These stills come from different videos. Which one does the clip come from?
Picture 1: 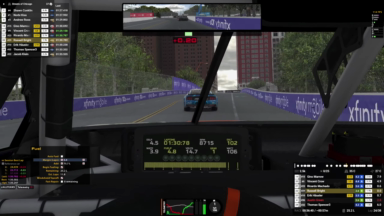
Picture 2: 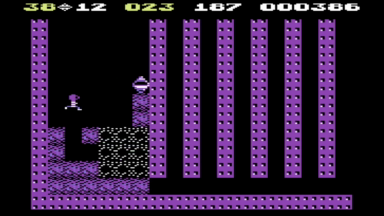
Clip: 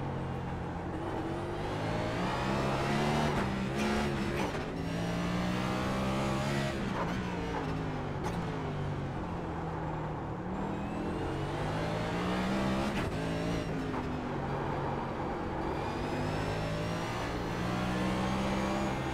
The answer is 1